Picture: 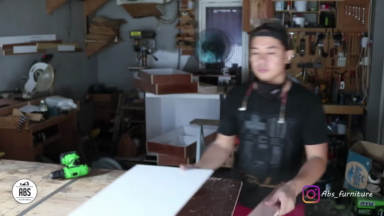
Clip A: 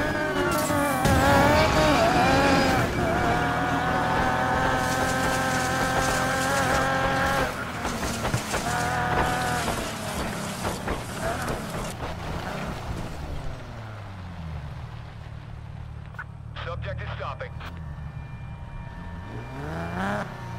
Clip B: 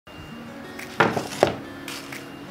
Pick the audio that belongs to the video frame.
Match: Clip B